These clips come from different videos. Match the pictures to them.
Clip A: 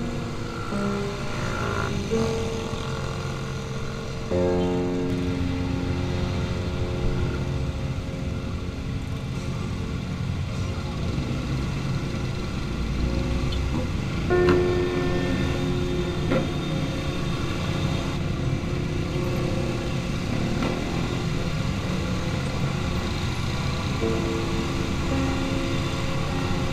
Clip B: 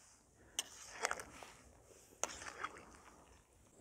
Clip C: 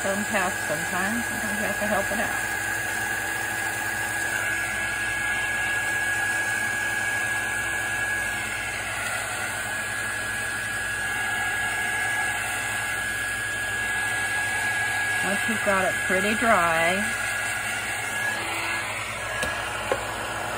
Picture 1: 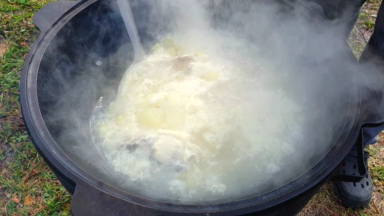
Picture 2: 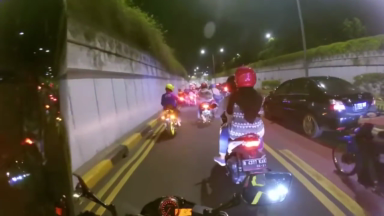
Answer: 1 B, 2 A